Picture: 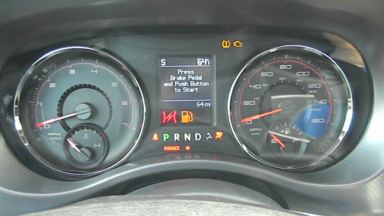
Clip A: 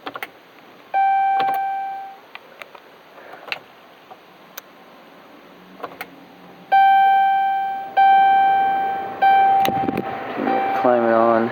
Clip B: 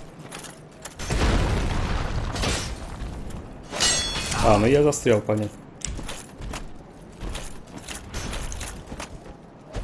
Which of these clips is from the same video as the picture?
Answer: A